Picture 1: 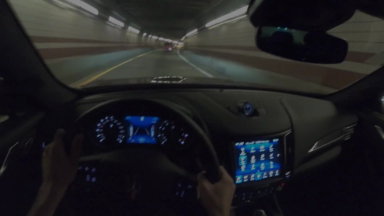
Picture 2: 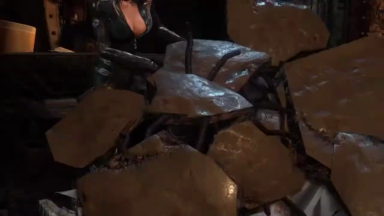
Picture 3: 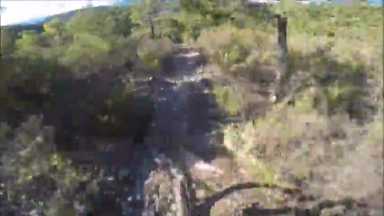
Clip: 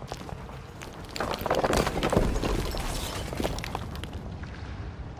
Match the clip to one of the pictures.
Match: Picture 2